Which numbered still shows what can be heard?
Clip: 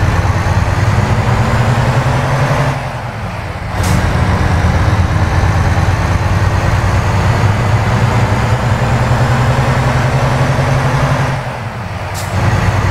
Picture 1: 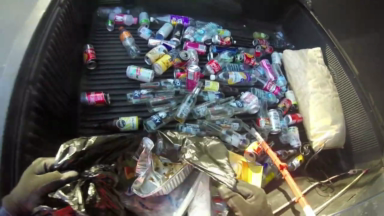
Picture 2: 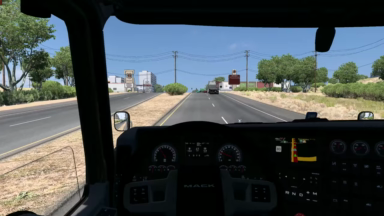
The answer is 2